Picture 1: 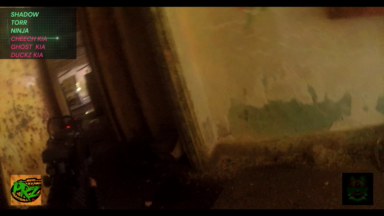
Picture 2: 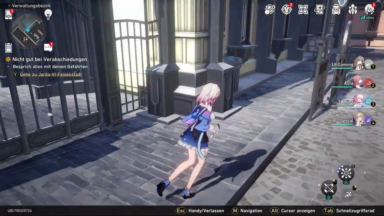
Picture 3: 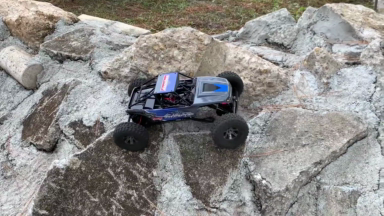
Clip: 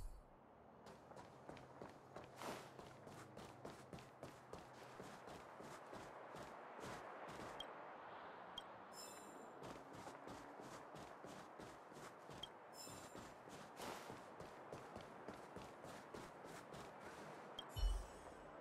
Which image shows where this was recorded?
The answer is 2